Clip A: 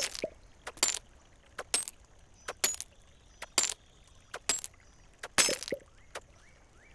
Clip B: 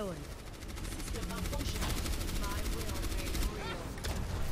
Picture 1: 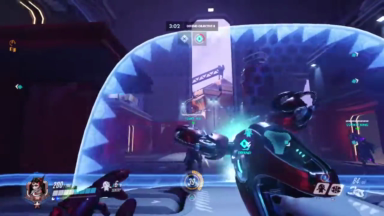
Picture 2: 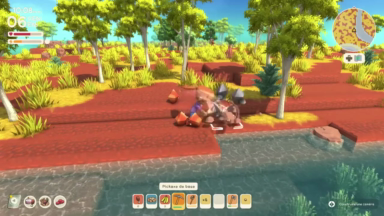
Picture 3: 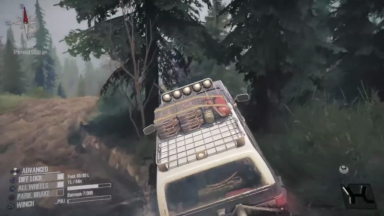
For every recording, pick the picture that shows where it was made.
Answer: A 2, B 1